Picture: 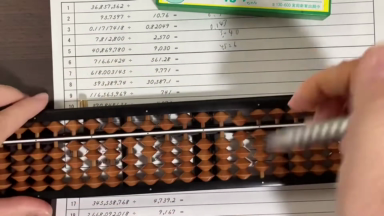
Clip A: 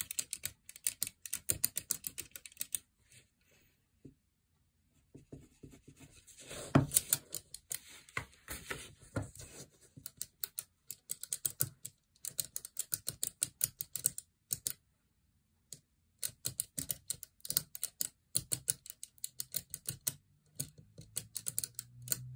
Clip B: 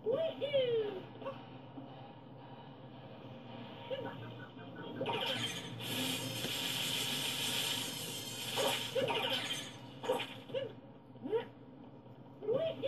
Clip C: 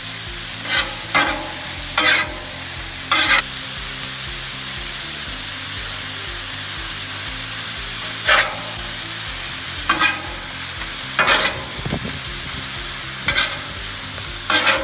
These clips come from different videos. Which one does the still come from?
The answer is A